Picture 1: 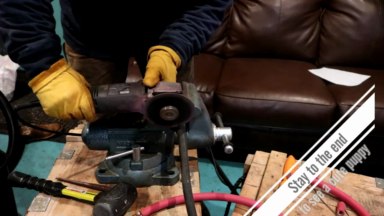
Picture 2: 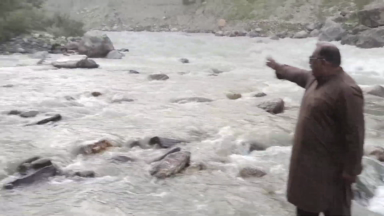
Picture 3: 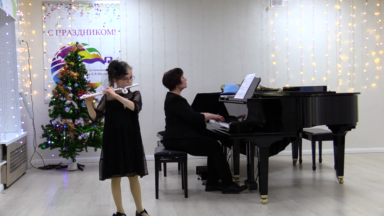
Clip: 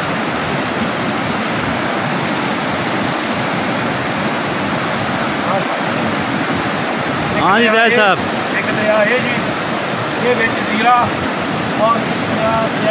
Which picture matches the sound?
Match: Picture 2